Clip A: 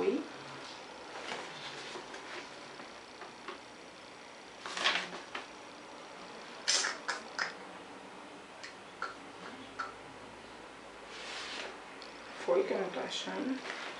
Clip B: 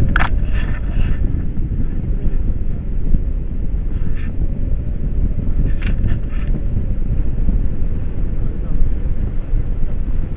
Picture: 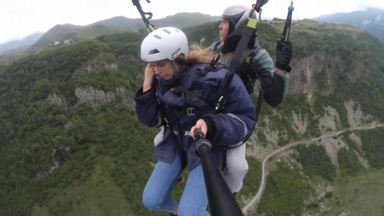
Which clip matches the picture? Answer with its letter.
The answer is B